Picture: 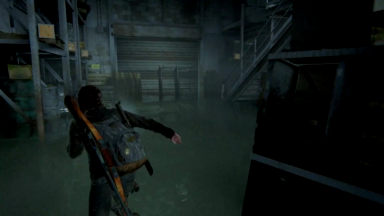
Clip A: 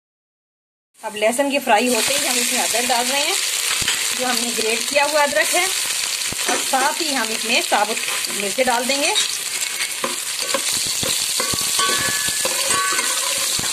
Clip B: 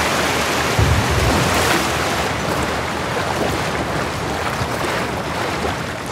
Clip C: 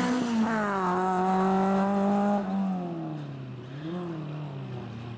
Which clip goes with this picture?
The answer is B